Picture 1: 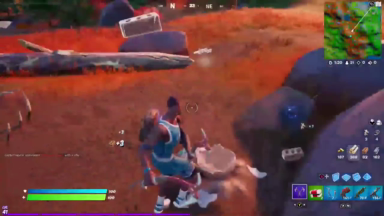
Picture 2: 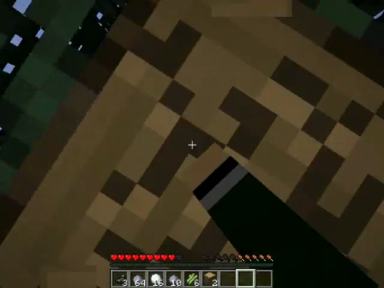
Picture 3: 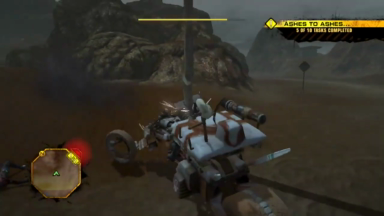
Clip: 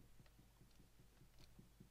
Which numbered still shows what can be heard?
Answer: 2